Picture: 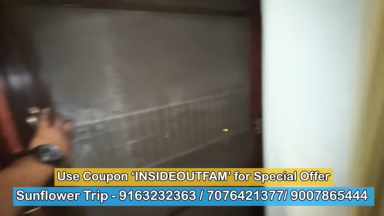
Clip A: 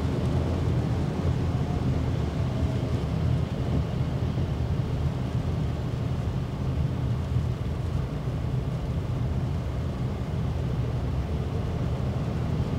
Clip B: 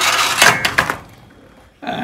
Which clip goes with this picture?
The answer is B